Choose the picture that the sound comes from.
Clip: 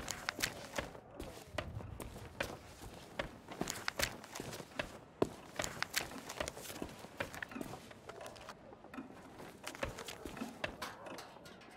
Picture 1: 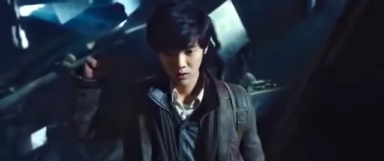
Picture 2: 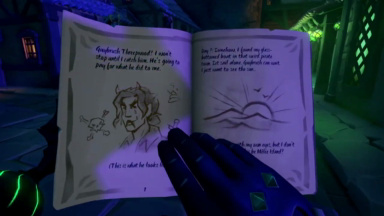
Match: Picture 2